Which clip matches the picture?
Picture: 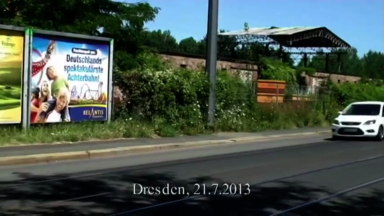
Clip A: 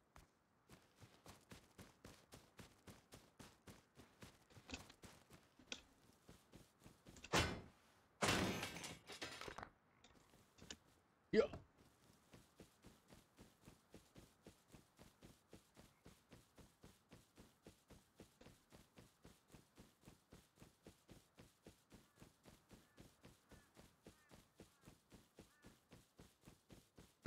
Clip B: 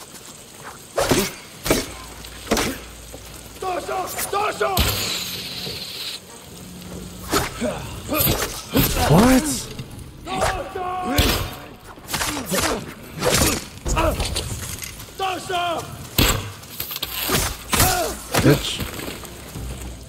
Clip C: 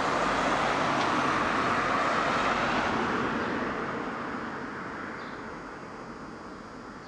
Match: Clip C